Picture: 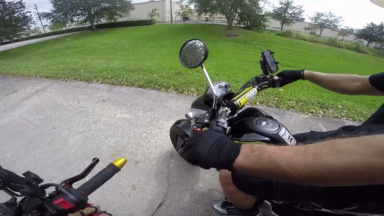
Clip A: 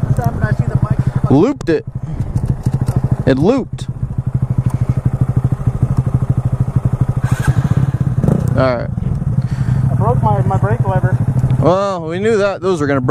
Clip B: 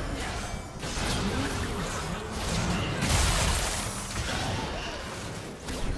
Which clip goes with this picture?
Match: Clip A